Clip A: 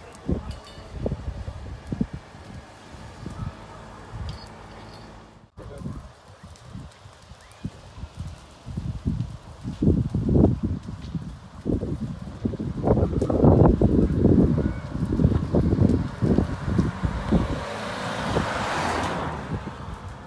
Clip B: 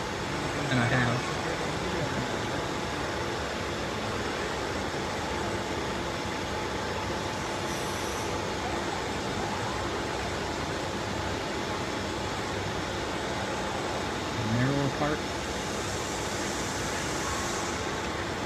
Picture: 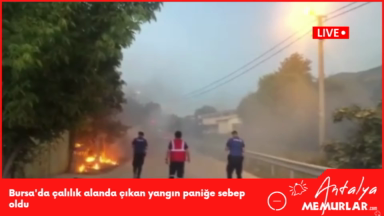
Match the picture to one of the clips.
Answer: A